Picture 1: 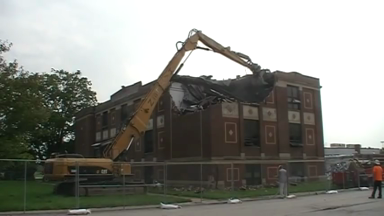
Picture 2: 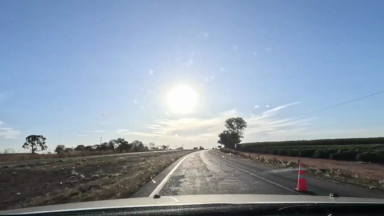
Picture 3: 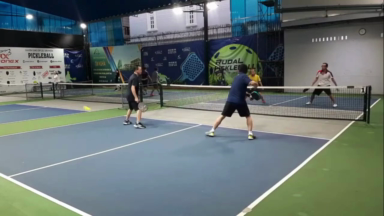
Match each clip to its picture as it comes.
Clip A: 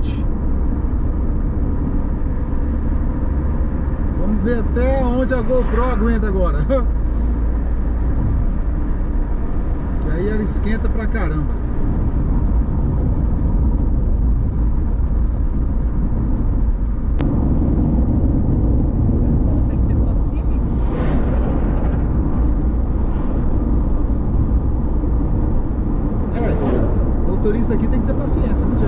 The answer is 2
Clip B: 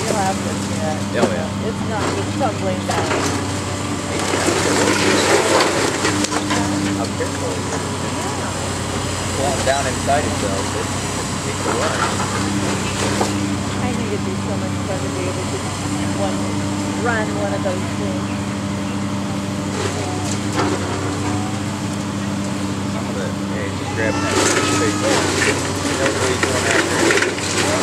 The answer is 1